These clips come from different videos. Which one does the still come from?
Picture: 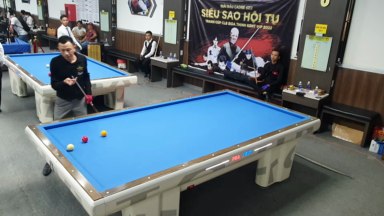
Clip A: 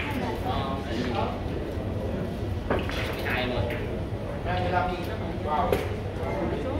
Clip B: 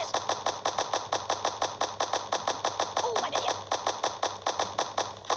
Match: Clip A